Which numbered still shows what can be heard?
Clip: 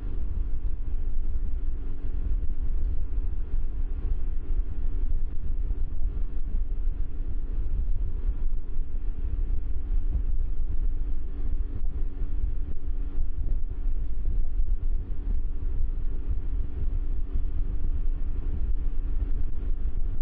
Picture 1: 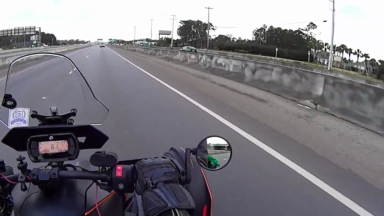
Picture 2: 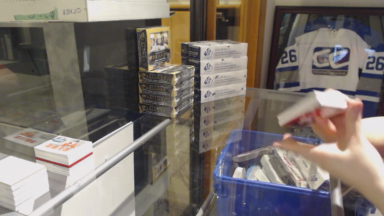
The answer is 1